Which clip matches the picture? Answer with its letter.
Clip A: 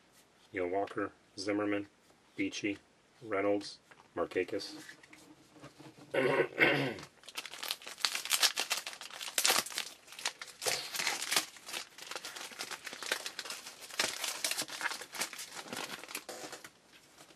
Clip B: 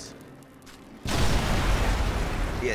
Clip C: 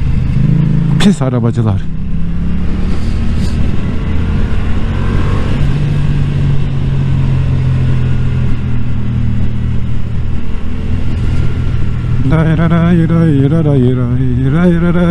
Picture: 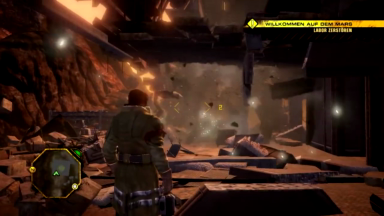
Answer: B